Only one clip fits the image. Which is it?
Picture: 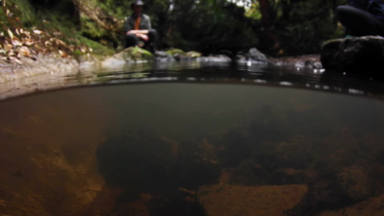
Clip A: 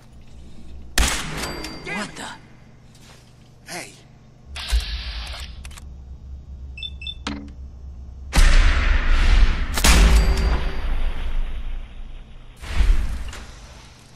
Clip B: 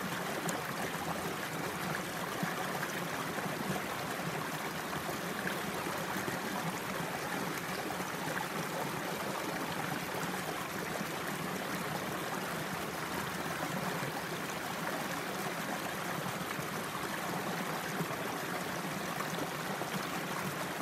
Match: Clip B